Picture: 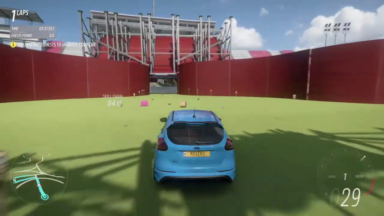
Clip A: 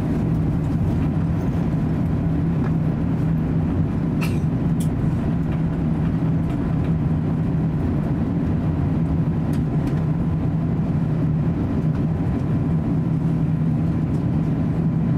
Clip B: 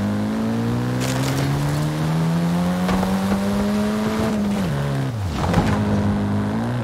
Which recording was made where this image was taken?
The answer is B